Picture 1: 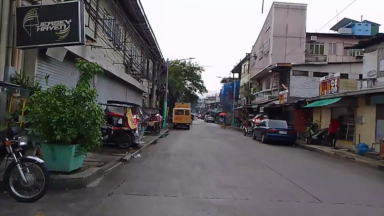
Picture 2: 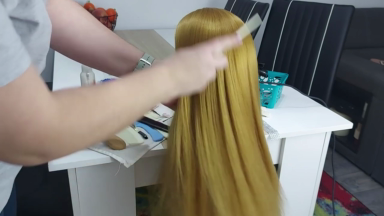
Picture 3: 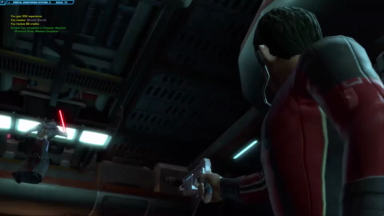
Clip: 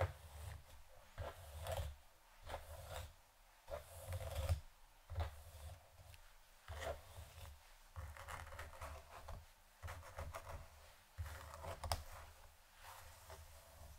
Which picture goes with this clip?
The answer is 2